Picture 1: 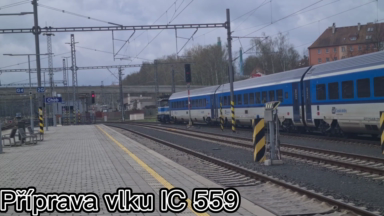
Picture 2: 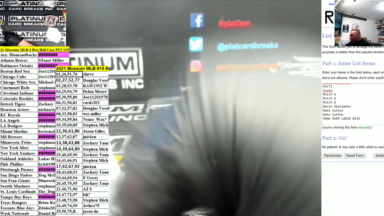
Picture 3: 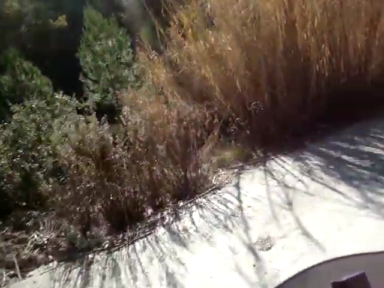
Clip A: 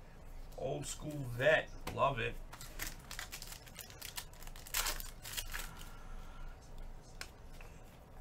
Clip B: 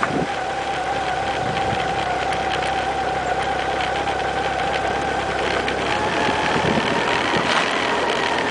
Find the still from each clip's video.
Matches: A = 2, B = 3